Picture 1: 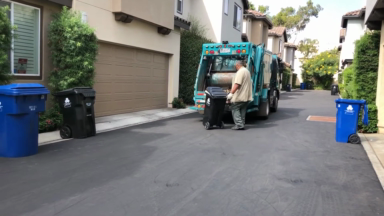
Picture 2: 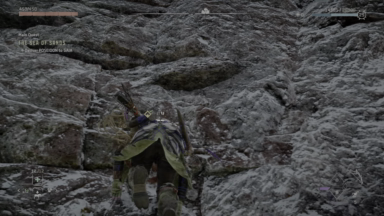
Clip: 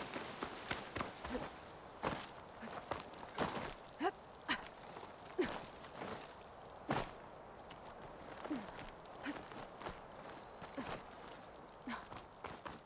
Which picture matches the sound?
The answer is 2